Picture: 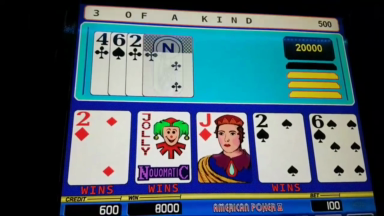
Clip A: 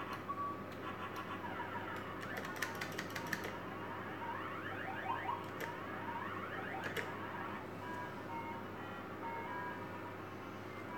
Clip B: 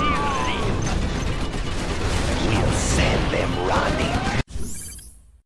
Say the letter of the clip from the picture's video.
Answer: A